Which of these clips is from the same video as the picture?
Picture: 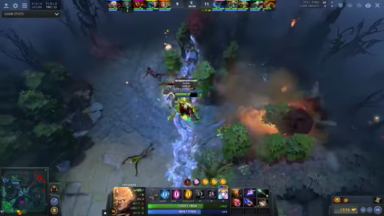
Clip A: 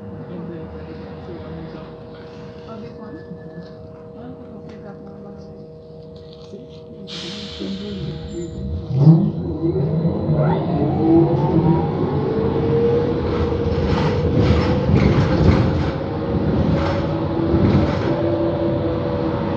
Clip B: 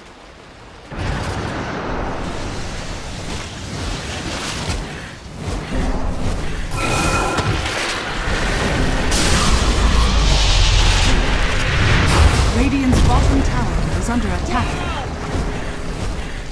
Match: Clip B